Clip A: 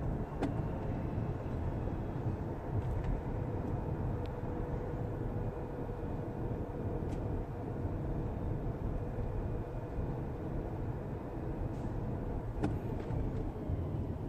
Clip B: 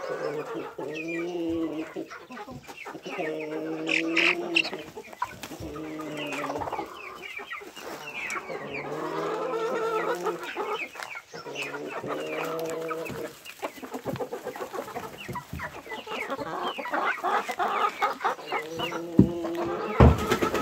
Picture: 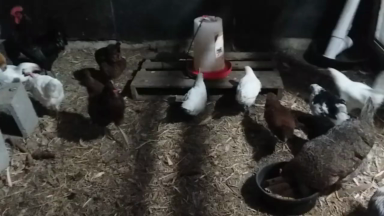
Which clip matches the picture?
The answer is B